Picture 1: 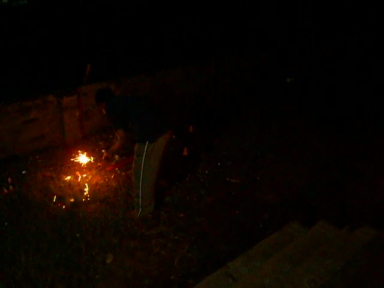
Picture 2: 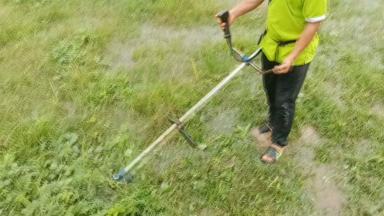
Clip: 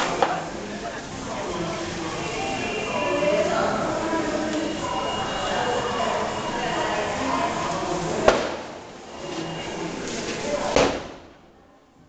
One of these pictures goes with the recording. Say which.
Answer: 1